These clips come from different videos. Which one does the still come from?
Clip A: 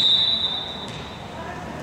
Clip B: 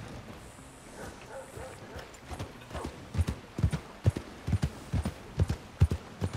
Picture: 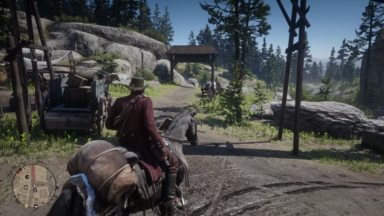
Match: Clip B